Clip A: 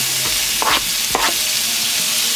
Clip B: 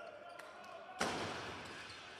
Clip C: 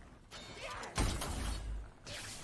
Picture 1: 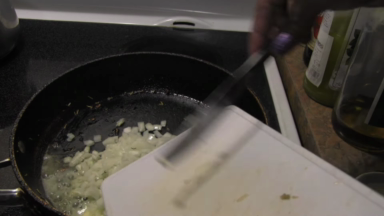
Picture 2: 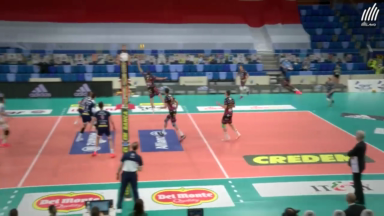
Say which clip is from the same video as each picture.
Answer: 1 A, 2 B